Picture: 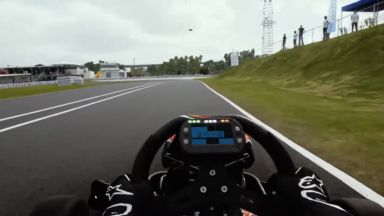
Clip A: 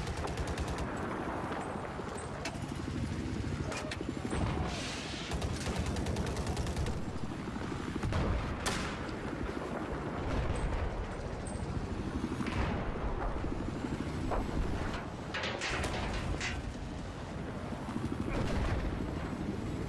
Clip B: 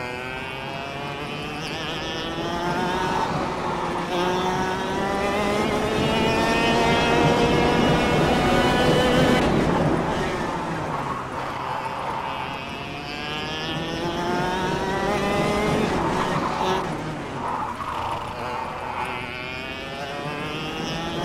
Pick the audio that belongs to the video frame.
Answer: B